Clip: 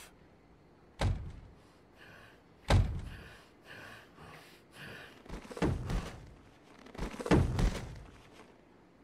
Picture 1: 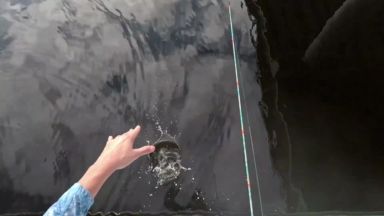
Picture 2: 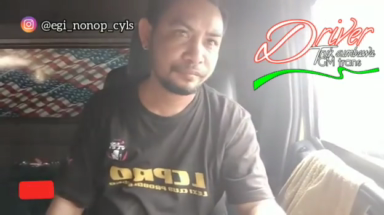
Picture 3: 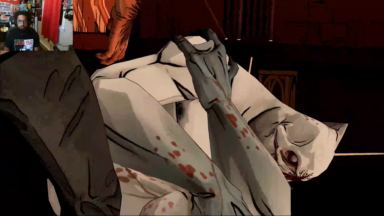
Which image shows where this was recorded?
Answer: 3